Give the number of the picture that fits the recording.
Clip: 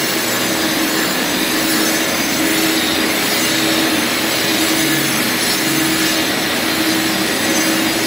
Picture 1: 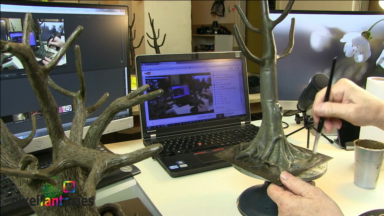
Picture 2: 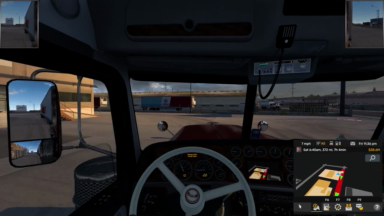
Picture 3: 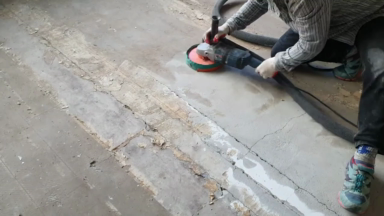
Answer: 3